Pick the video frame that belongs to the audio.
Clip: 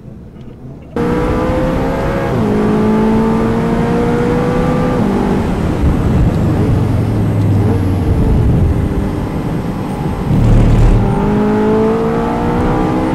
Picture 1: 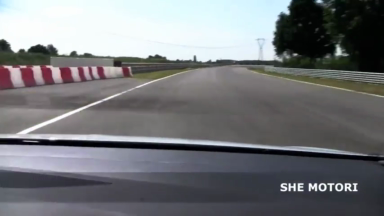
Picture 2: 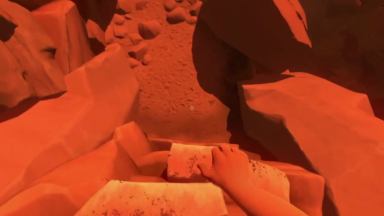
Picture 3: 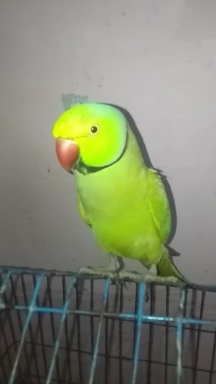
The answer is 1